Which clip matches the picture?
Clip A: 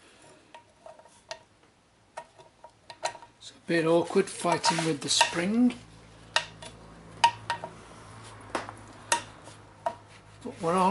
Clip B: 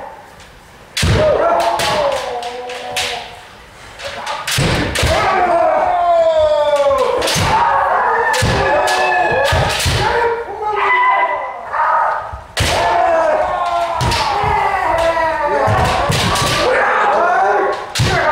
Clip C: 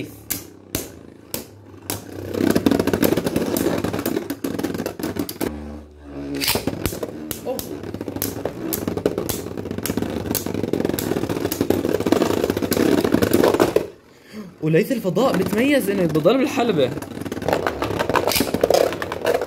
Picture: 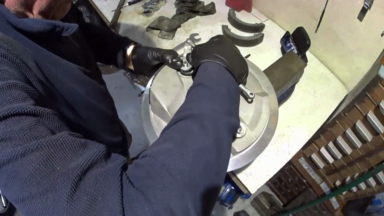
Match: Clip A